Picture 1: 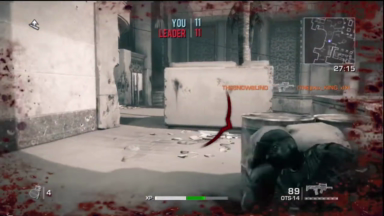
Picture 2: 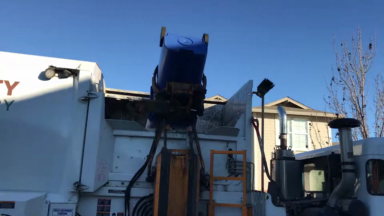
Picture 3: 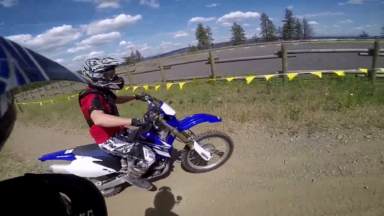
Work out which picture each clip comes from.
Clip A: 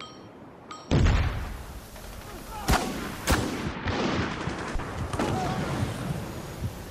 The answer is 1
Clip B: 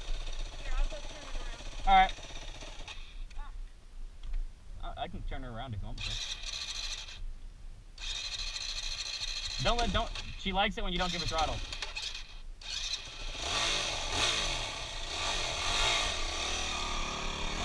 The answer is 3